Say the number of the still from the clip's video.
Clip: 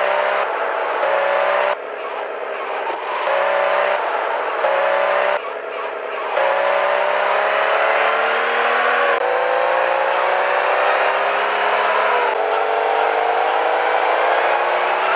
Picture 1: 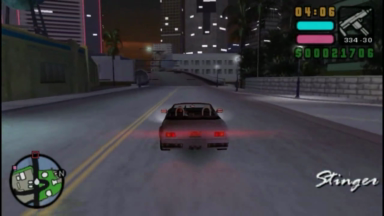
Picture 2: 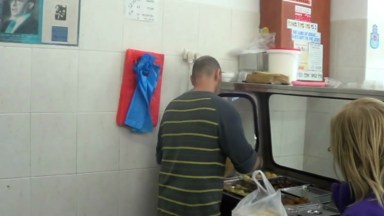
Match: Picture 1